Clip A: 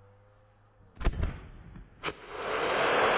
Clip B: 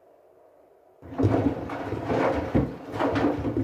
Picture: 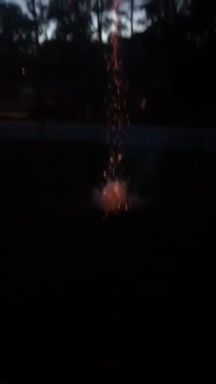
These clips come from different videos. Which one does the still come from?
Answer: A